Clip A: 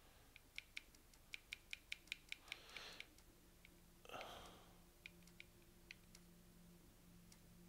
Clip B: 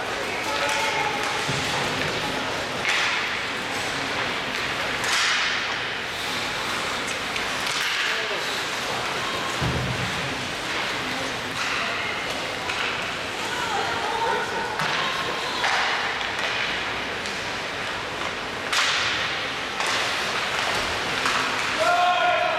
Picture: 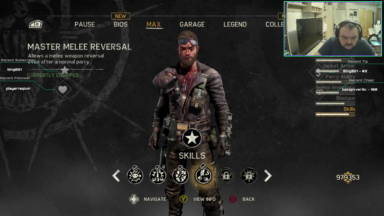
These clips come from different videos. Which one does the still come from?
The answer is A